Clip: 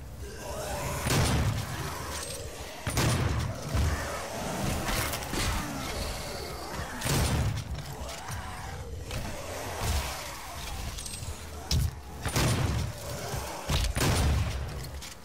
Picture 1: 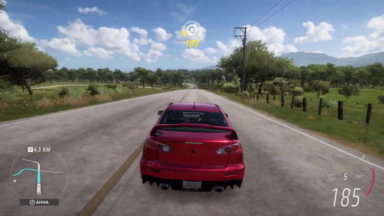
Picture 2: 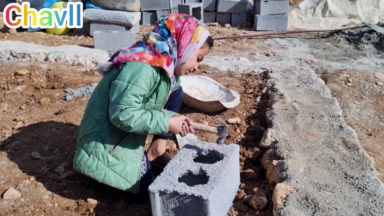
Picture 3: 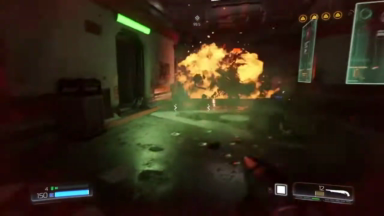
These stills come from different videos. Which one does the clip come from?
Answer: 3